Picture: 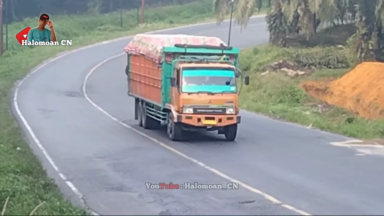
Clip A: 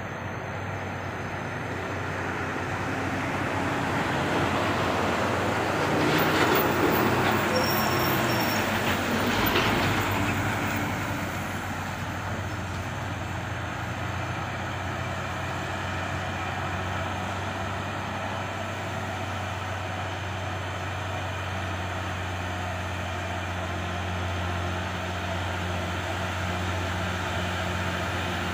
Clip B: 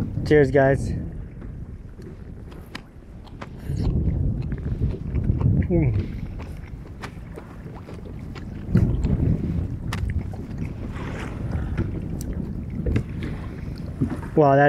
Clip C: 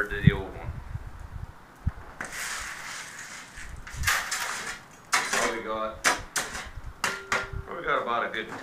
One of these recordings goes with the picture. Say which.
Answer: A